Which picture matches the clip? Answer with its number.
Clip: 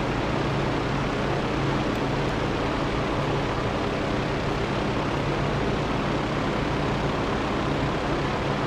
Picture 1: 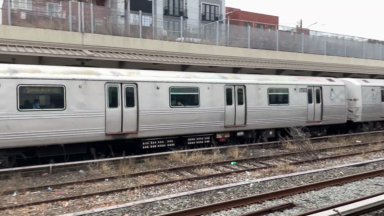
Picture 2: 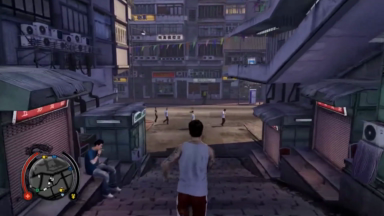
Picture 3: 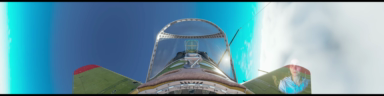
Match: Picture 3